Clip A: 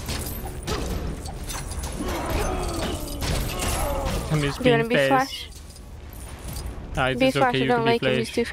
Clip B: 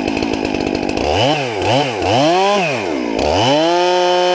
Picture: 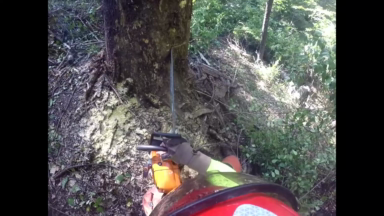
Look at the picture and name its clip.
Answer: B